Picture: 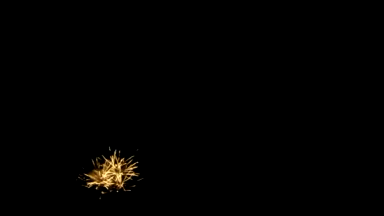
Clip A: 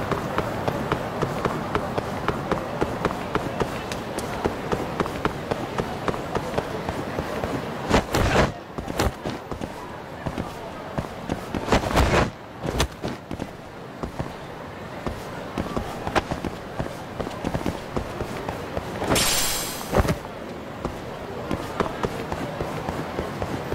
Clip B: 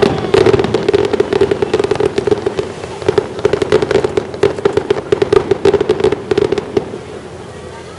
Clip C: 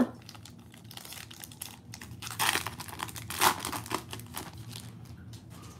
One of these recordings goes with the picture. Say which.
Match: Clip B